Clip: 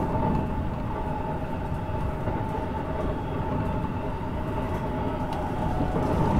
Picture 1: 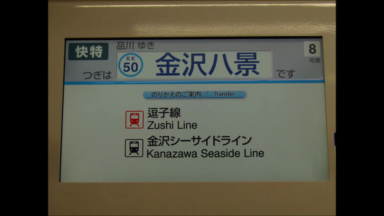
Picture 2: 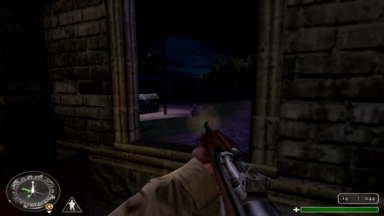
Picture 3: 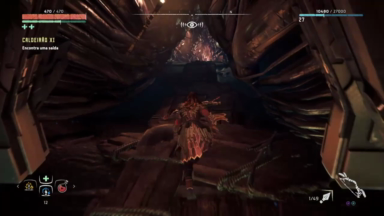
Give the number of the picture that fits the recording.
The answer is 1